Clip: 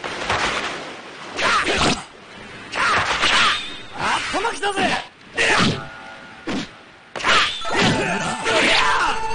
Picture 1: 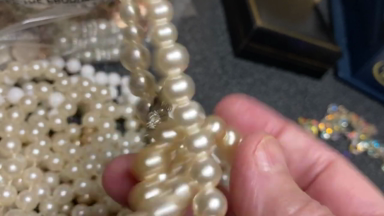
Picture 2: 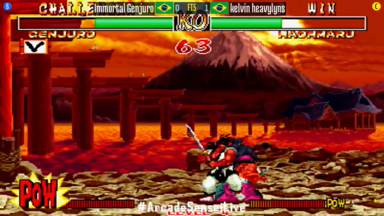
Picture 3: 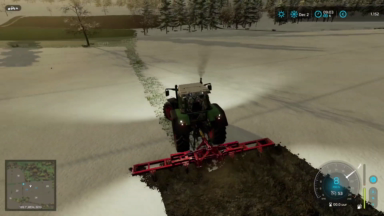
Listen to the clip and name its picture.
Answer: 2